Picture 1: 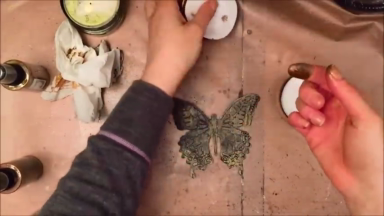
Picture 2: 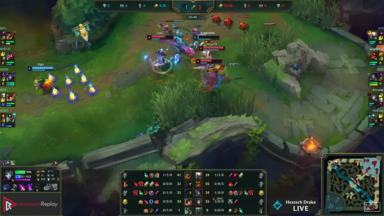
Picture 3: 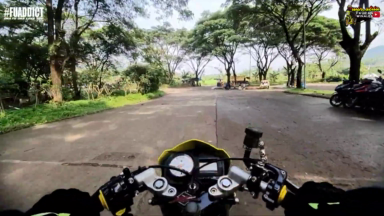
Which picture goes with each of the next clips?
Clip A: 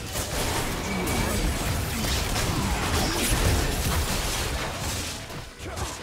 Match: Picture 2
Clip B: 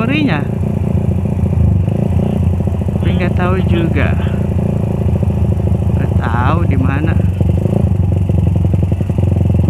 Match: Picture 3